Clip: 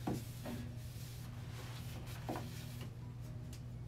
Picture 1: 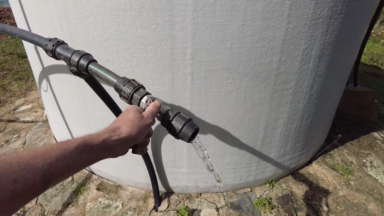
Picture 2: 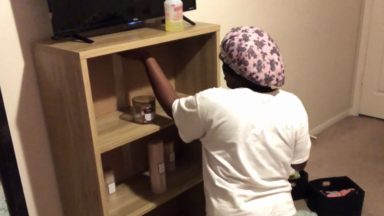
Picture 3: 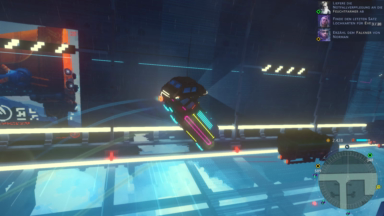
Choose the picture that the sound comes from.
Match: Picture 2